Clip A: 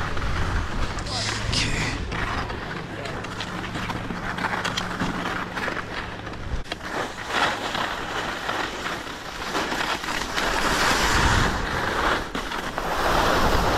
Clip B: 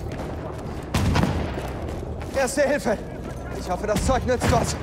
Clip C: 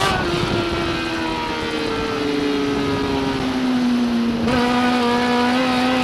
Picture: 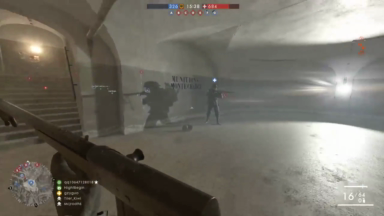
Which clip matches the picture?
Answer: B